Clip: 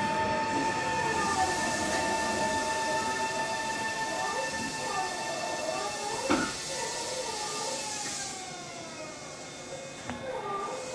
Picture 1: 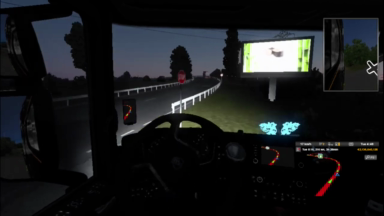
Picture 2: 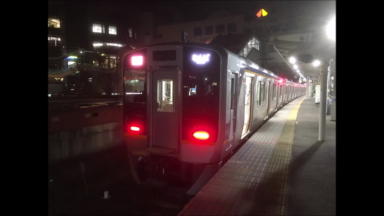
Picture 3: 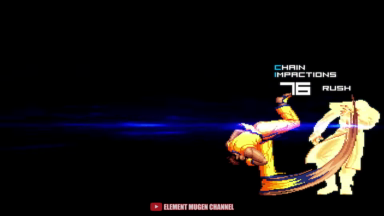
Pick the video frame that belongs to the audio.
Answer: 2